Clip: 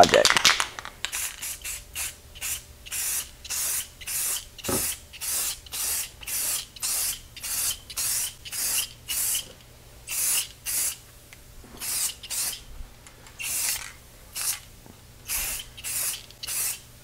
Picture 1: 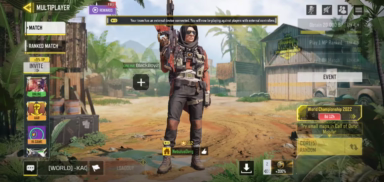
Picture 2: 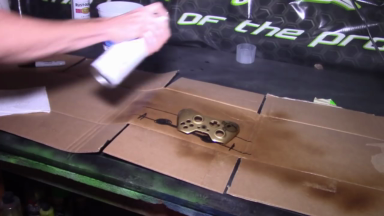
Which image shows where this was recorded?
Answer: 2